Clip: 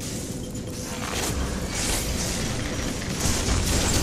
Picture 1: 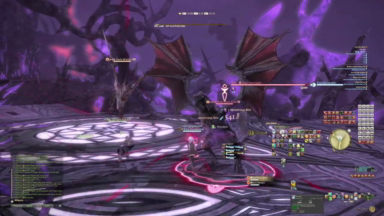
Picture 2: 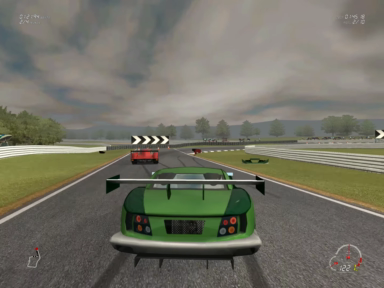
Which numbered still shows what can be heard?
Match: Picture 1